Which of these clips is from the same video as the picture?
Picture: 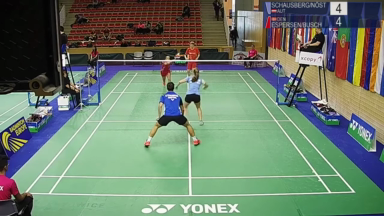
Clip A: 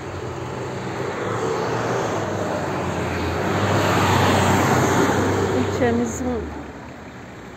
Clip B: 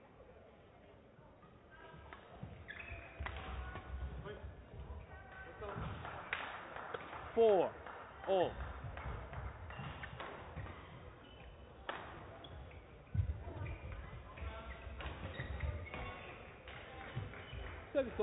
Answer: B